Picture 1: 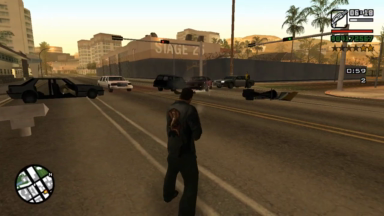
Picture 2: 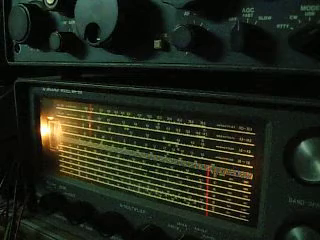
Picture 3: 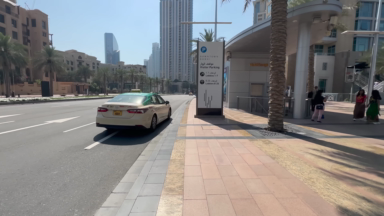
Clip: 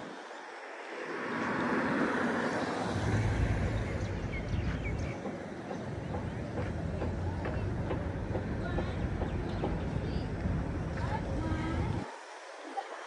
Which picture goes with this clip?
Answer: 3